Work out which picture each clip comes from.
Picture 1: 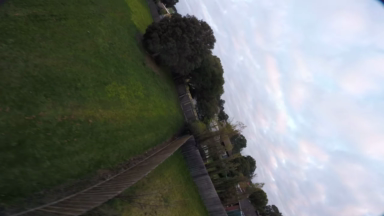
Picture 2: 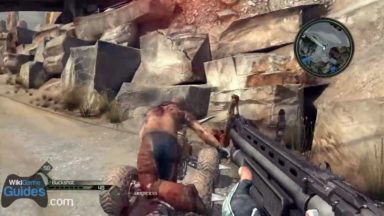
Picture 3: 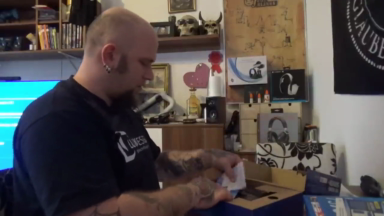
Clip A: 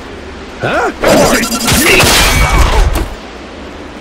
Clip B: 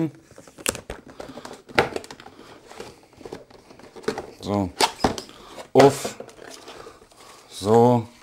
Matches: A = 2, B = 3